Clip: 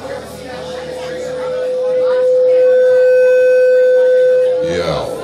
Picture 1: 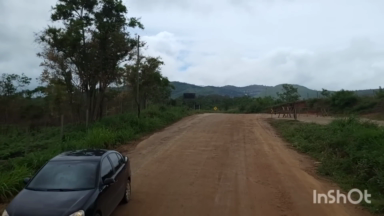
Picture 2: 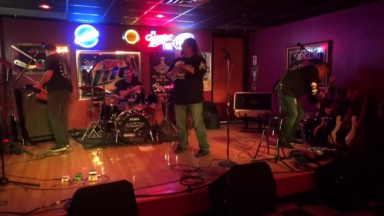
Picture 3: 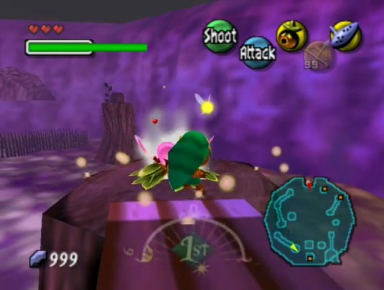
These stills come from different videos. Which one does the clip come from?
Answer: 2